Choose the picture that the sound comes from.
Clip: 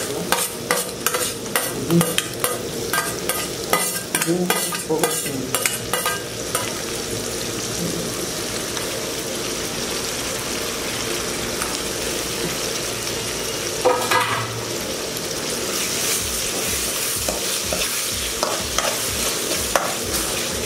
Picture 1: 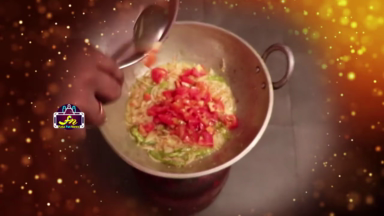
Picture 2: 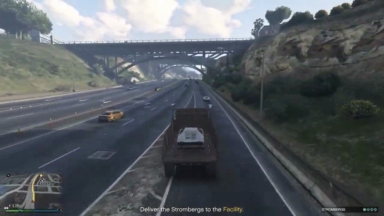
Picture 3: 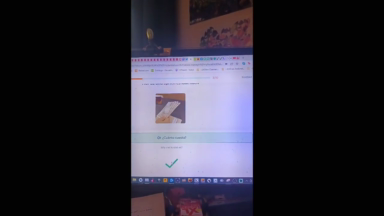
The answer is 1